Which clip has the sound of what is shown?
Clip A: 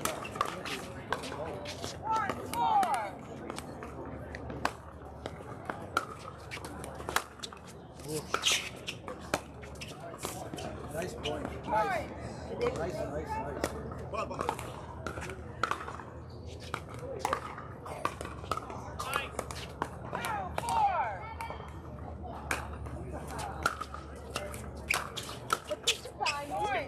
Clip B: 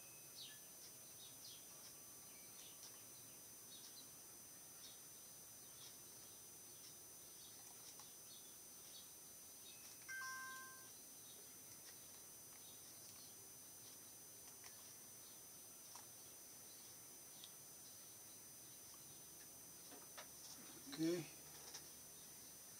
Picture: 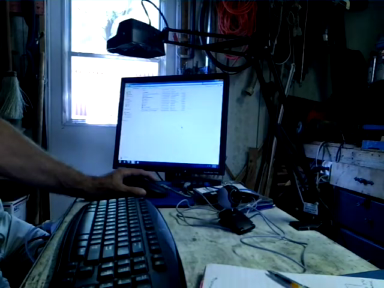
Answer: B